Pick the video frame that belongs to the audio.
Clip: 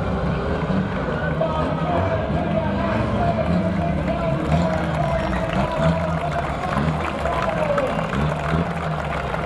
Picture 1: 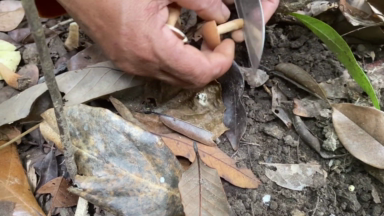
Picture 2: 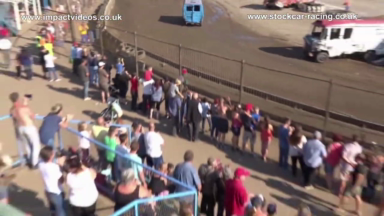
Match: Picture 2